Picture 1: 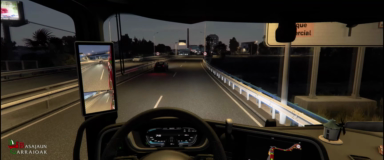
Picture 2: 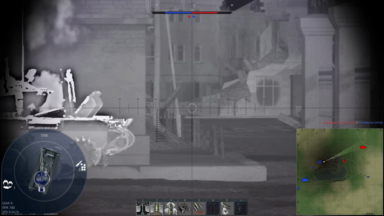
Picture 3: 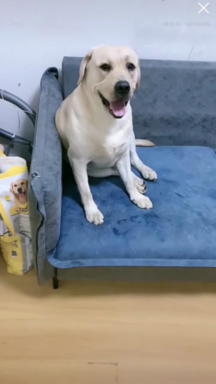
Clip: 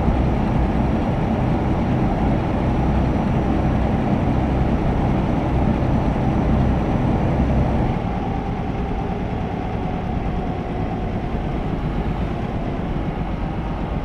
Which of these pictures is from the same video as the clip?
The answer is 1